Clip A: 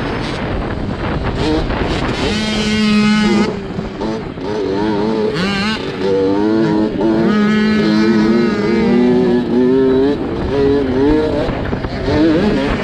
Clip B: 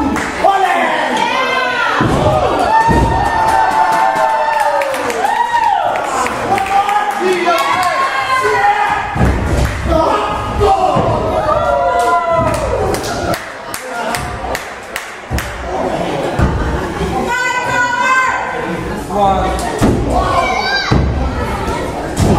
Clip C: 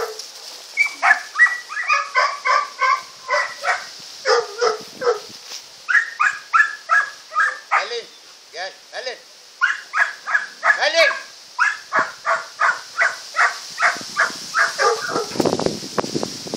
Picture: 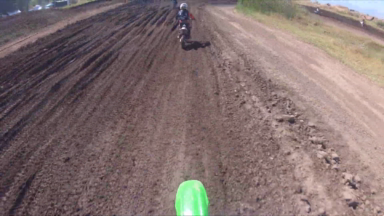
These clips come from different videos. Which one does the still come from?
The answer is A